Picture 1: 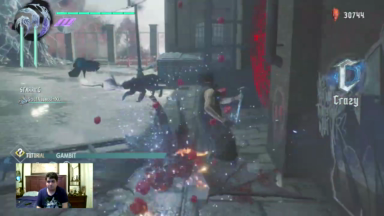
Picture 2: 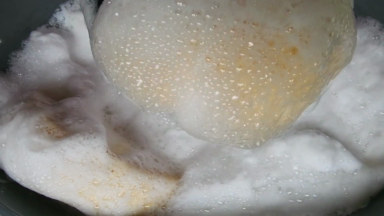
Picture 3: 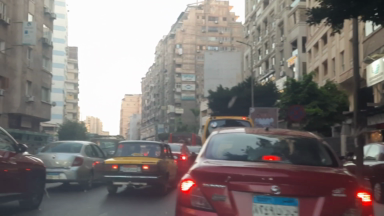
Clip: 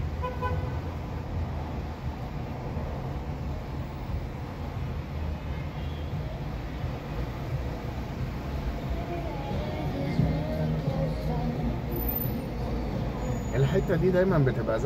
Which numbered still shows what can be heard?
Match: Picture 3